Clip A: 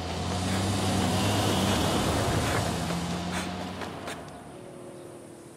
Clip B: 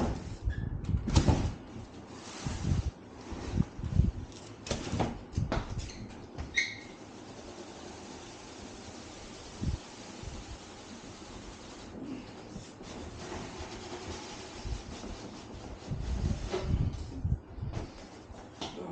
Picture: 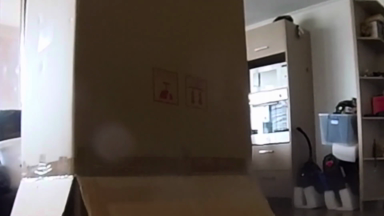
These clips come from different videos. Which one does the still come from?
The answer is B